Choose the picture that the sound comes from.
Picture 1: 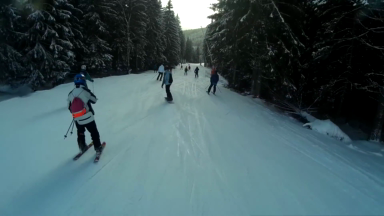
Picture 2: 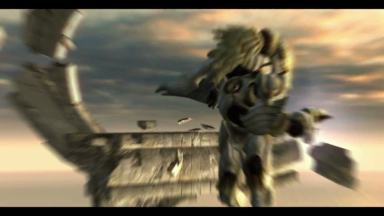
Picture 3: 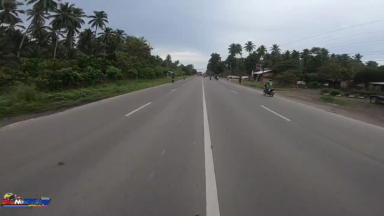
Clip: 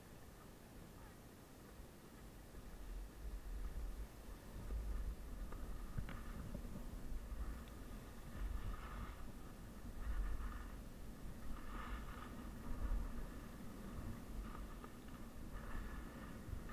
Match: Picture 1